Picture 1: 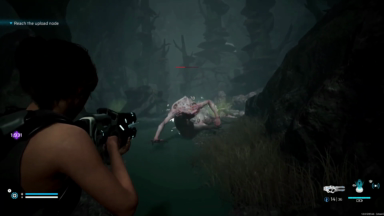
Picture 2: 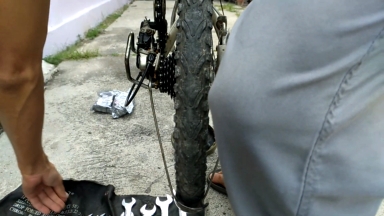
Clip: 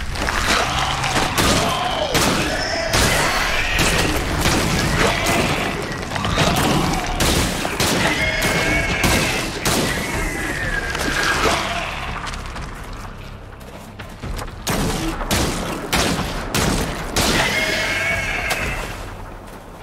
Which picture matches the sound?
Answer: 1